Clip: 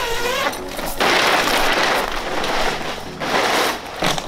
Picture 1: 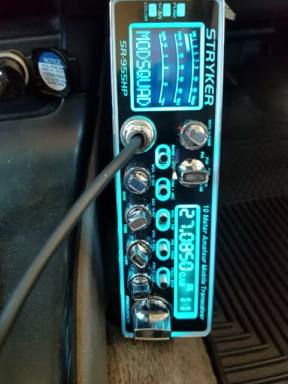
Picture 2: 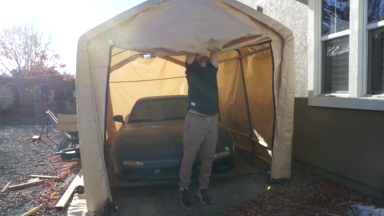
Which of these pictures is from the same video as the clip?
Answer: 2